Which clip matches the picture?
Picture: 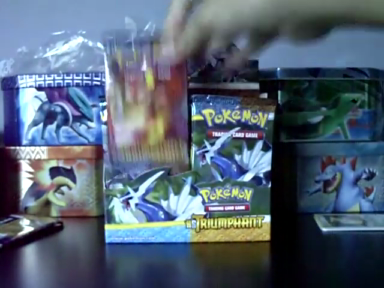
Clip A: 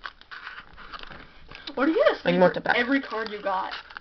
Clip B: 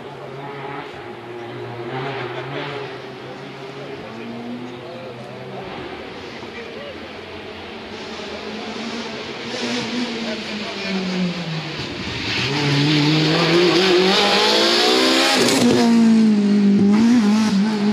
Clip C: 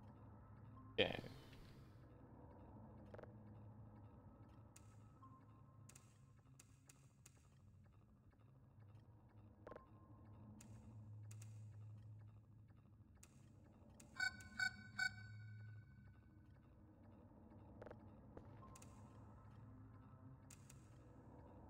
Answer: A